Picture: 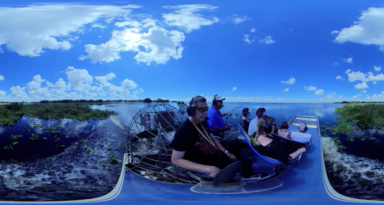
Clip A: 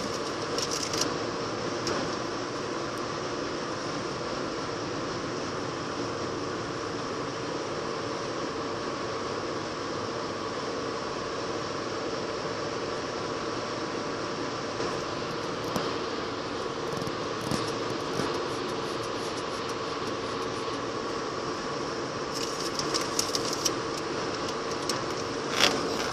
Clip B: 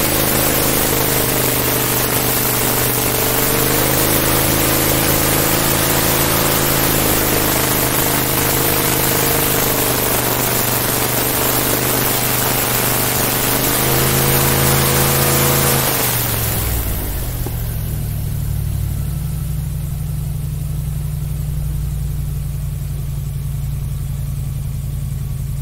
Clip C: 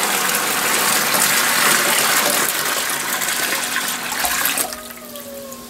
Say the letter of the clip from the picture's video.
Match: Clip B